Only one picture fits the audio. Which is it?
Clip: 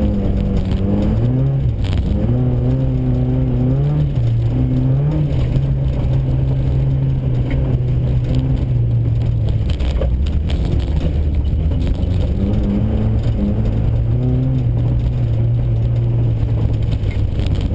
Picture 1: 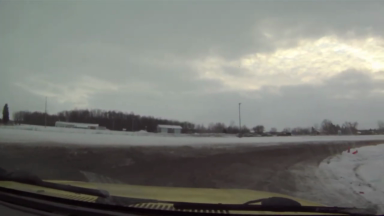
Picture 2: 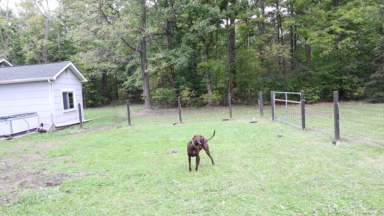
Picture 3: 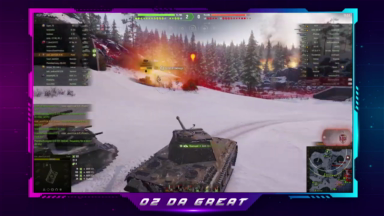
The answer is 1